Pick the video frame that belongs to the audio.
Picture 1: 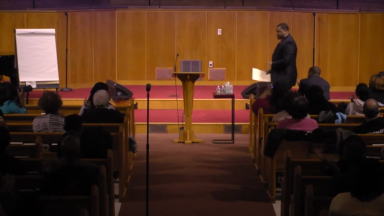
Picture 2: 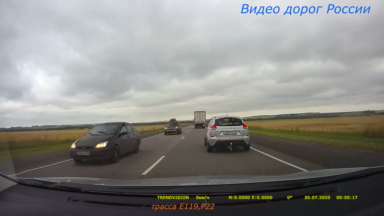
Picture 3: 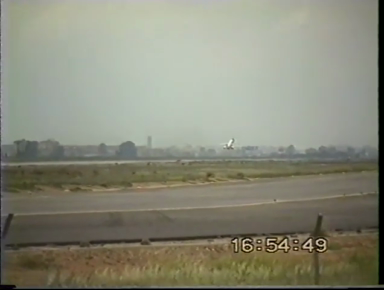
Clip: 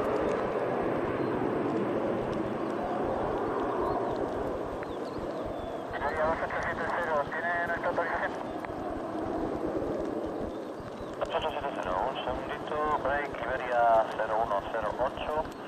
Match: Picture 3